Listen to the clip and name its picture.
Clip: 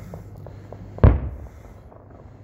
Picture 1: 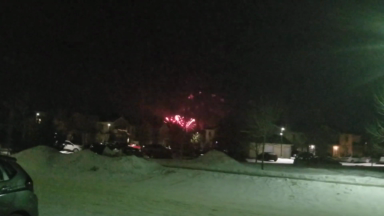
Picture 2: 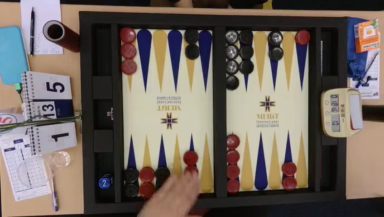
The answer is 1